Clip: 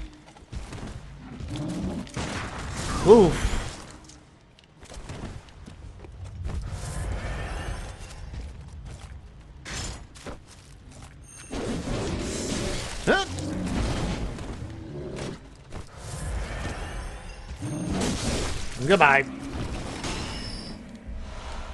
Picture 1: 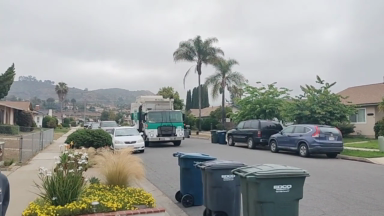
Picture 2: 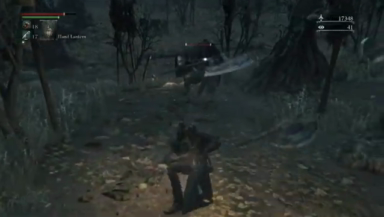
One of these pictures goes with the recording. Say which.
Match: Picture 2